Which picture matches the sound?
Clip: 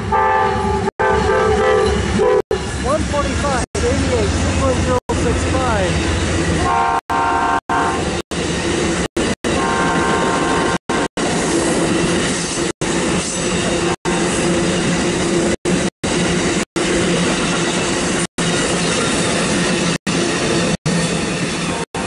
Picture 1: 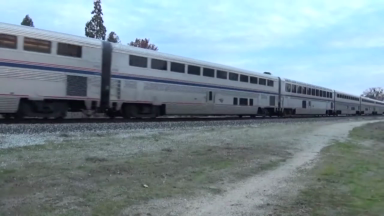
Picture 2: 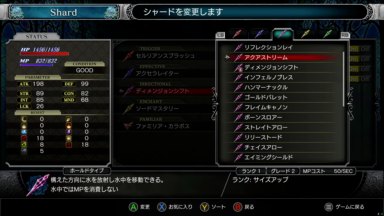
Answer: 1